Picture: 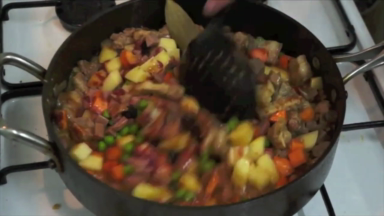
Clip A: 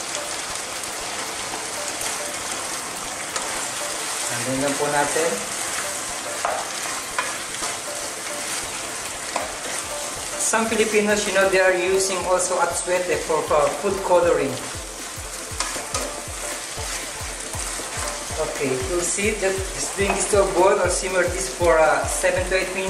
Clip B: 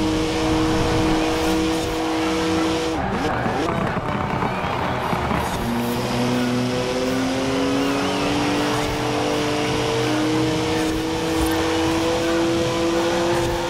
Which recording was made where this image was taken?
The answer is A